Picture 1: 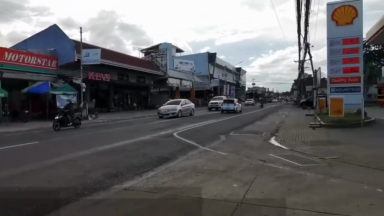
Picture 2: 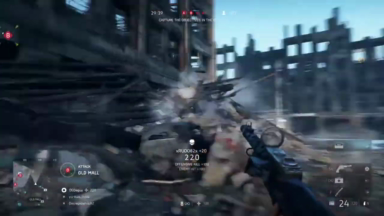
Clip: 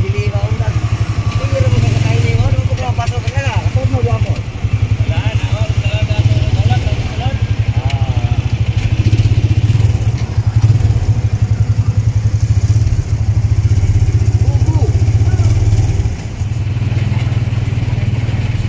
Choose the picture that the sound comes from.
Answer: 1